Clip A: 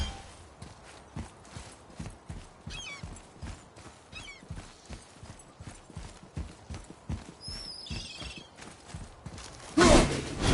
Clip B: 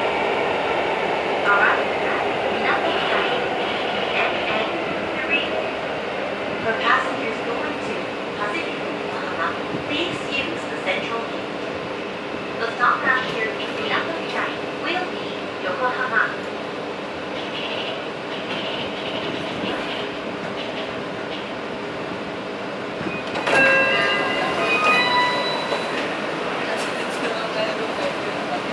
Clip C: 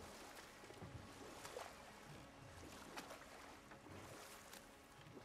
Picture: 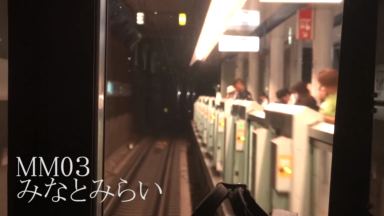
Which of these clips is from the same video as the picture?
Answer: B